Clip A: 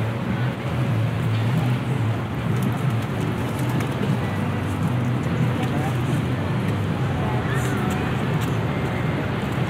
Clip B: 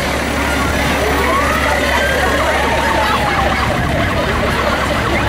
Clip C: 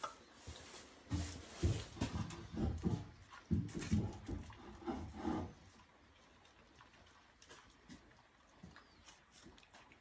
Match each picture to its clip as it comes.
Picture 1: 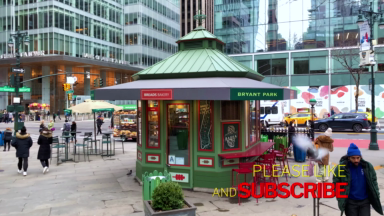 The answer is A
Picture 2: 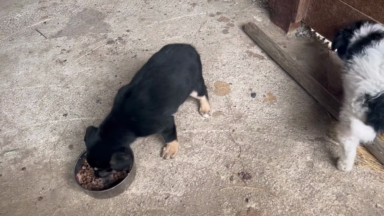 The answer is C